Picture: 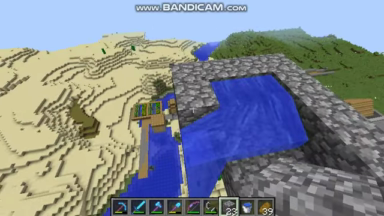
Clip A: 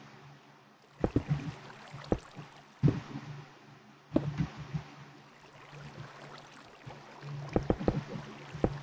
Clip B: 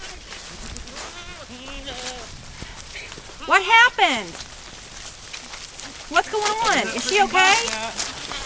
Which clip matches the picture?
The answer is A